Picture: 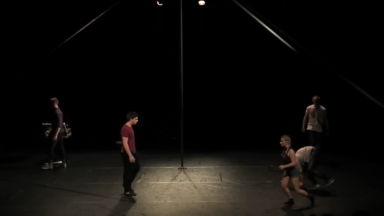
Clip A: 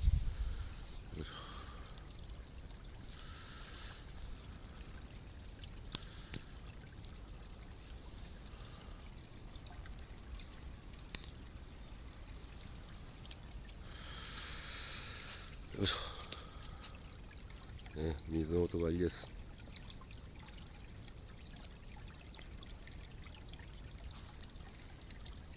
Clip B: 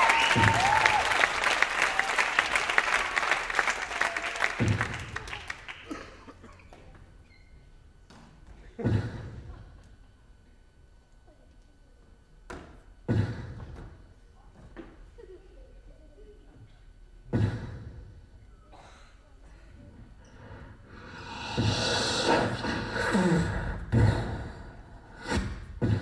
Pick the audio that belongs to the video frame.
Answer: B